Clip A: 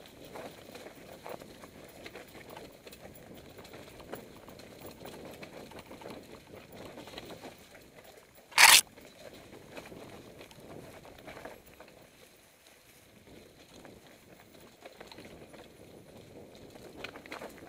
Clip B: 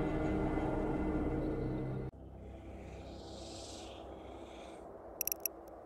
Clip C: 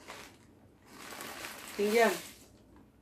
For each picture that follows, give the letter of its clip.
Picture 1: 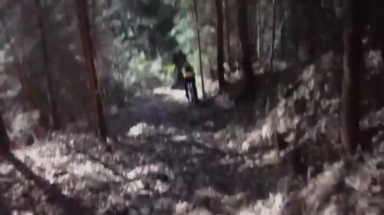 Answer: A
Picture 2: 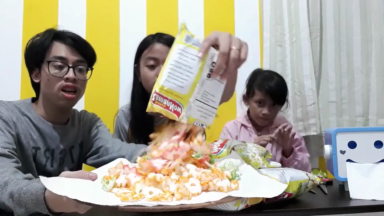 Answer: C